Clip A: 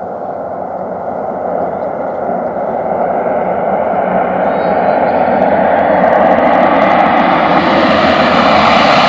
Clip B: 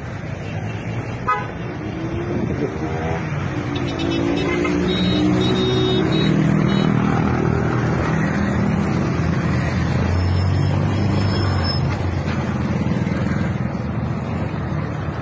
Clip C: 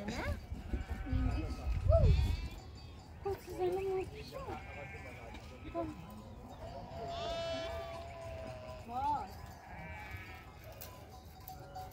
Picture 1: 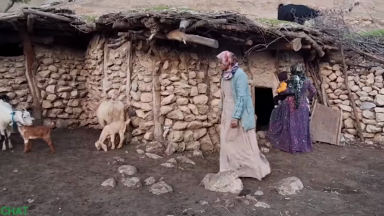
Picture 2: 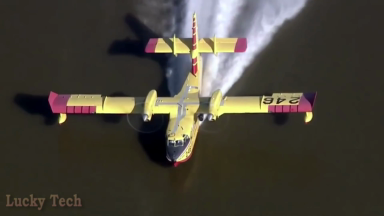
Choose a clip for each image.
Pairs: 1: C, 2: A